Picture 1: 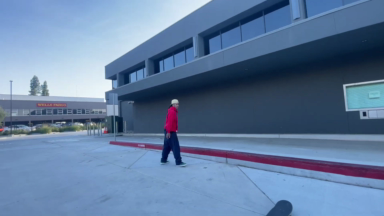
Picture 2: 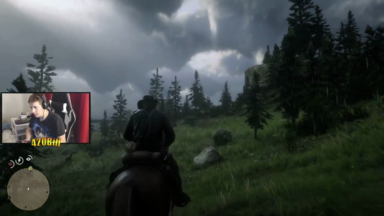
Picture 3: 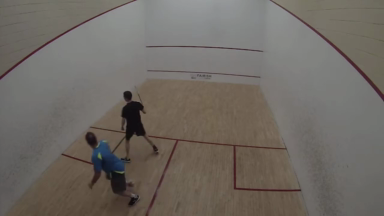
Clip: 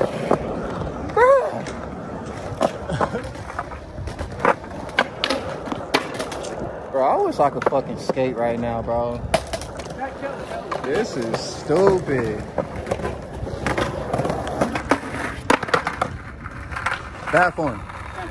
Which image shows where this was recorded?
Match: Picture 1